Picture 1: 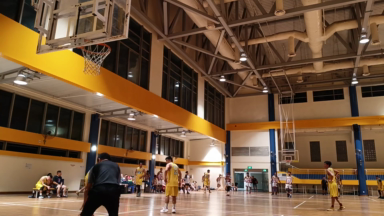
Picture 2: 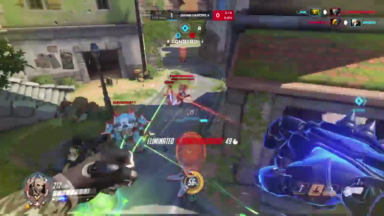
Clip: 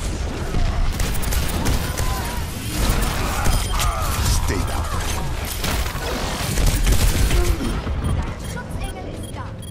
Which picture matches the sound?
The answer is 2